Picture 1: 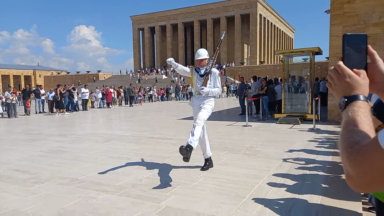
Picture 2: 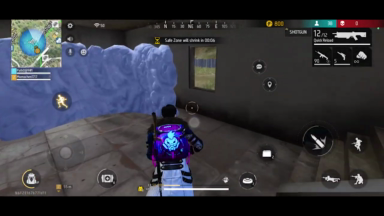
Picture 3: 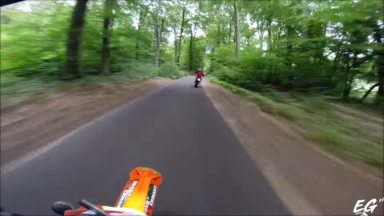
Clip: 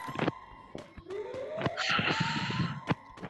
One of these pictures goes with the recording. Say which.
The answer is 2